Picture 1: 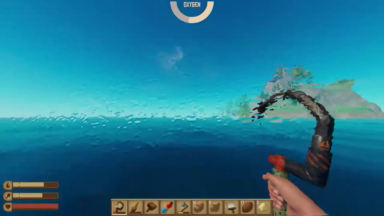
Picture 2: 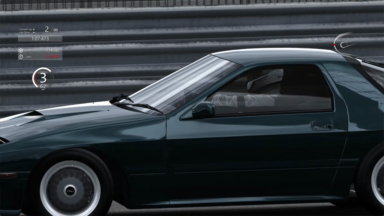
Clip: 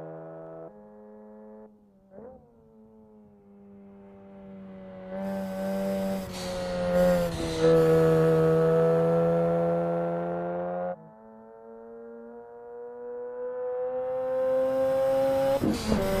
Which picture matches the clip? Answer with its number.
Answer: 2